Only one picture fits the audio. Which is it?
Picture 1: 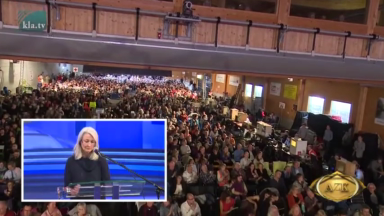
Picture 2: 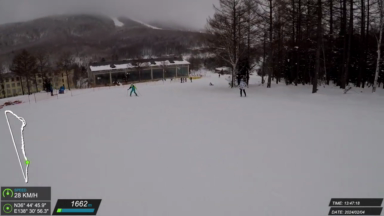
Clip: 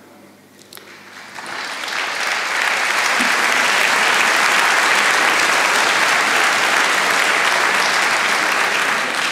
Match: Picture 1